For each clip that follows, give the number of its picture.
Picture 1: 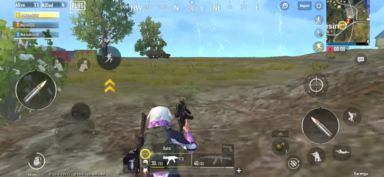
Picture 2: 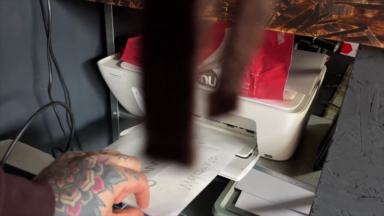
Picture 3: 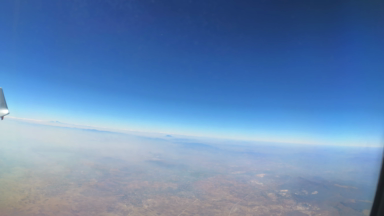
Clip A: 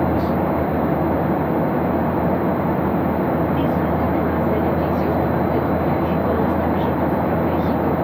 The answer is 3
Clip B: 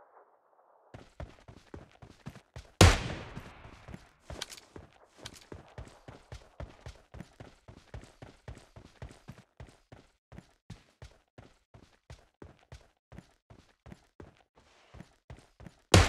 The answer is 1